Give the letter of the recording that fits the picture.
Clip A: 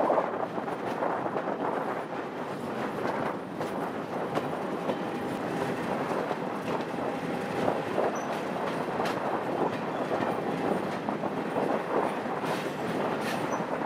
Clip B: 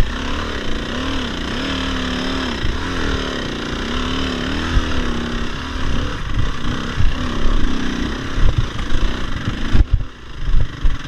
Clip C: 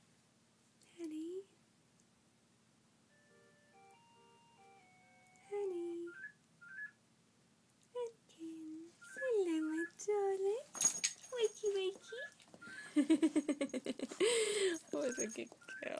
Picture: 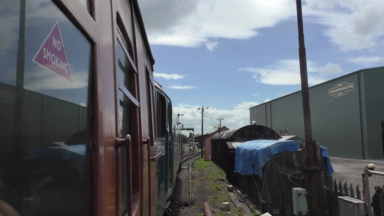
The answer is A